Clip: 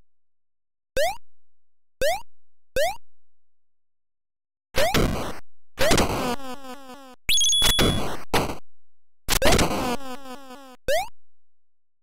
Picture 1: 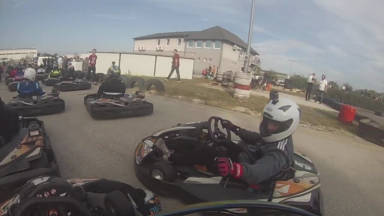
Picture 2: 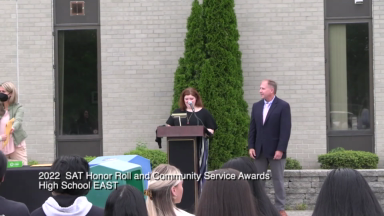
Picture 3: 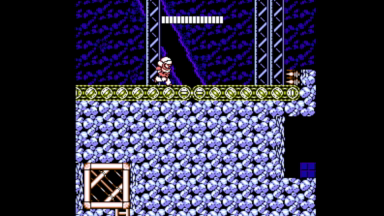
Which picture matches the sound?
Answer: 3